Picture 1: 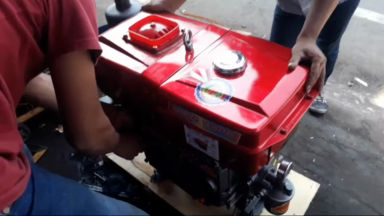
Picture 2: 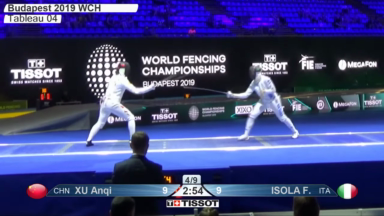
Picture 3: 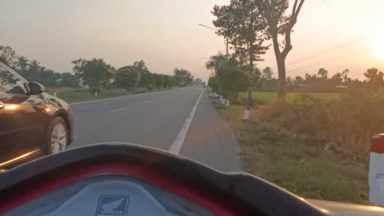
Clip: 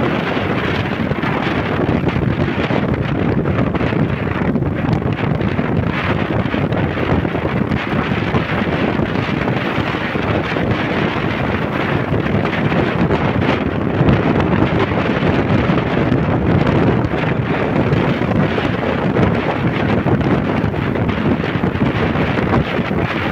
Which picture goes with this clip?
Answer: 3